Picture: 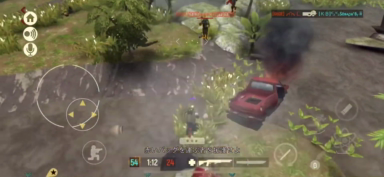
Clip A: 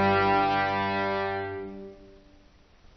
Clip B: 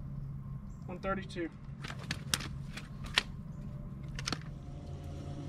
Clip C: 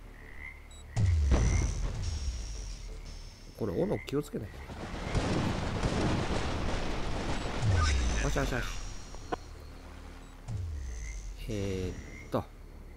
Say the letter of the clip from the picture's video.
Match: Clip C